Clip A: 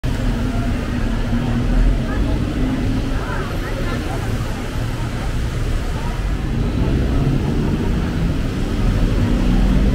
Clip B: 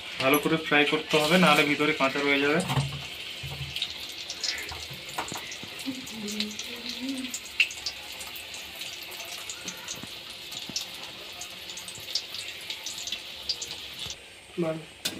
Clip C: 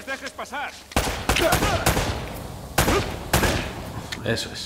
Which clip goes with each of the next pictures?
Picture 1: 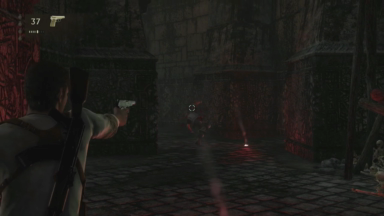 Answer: C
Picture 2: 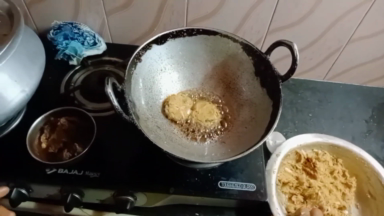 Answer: B